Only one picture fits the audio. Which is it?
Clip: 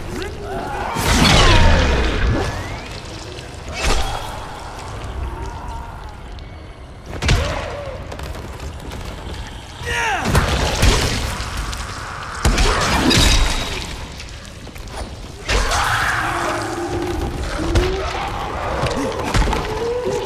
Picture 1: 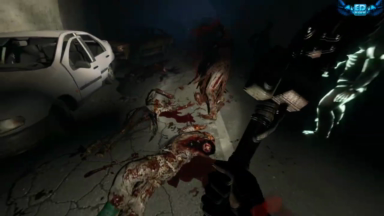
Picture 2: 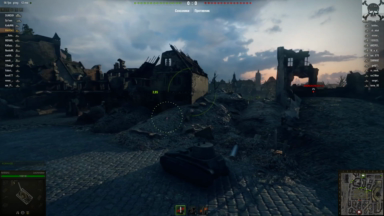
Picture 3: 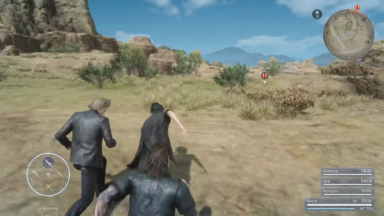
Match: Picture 1